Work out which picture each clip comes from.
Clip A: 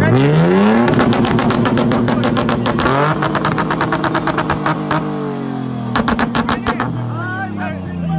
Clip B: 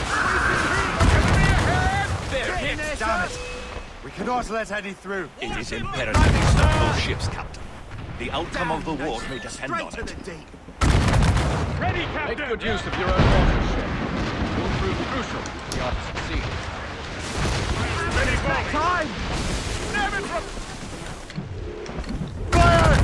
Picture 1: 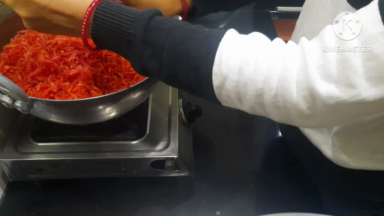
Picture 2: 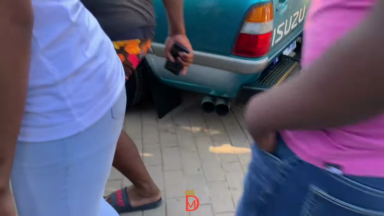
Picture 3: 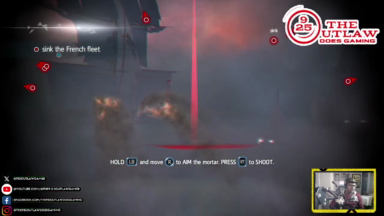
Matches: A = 2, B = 3